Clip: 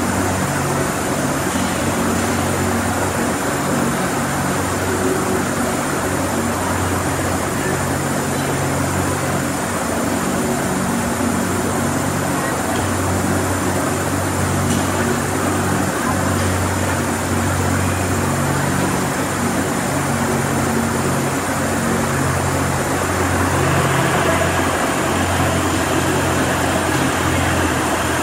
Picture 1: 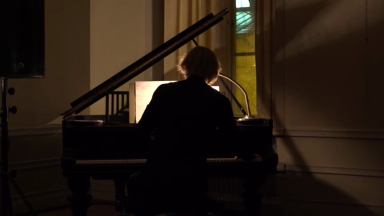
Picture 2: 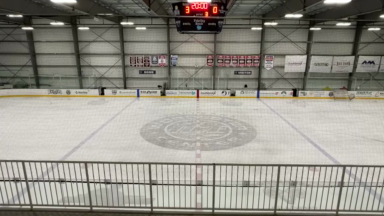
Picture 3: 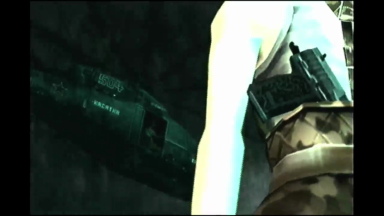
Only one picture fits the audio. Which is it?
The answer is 2